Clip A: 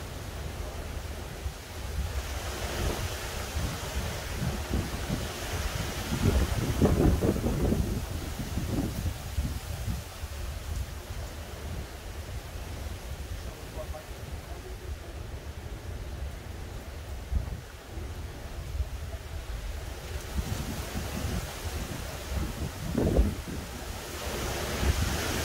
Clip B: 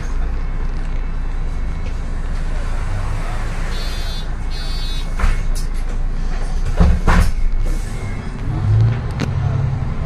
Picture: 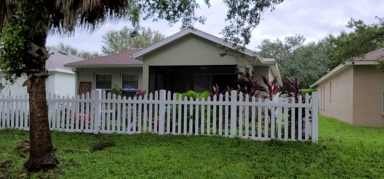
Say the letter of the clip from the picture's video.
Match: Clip A